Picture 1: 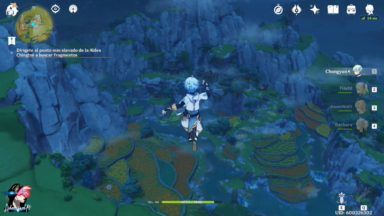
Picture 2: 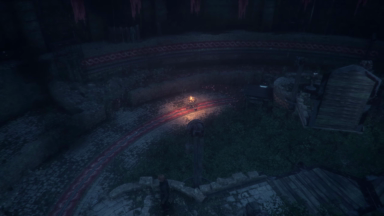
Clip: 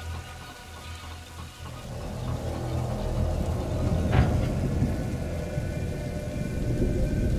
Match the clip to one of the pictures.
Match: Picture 2